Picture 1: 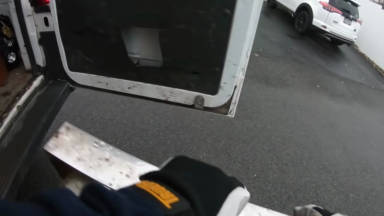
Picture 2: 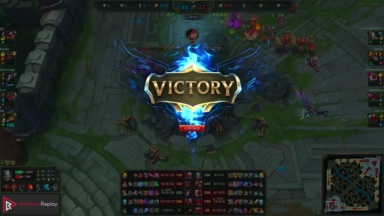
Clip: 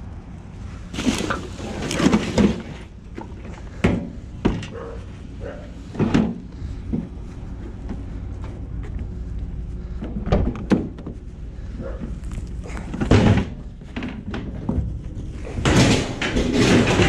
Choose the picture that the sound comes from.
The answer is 1